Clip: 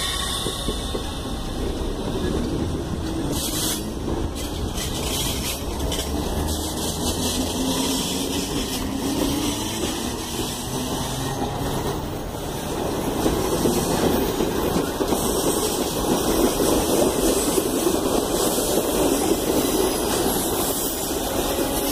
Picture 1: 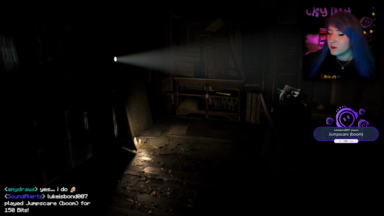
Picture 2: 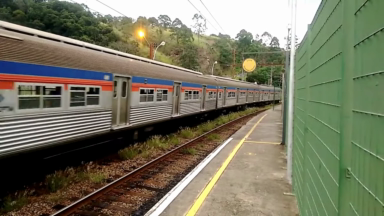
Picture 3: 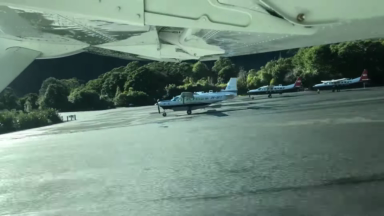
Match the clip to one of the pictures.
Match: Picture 2